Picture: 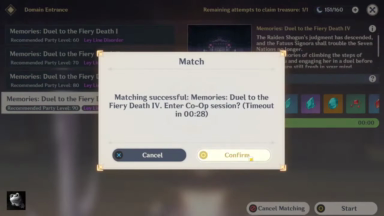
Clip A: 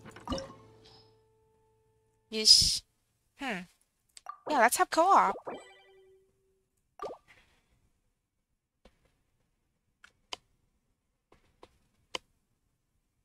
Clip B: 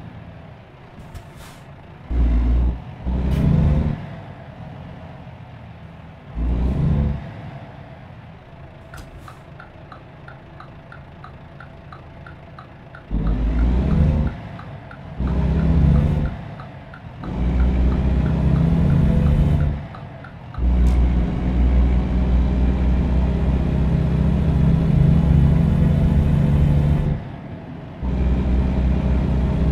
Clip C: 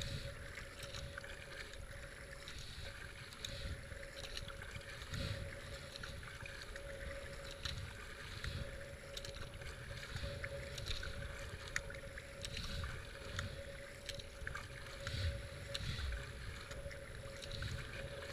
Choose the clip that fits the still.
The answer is A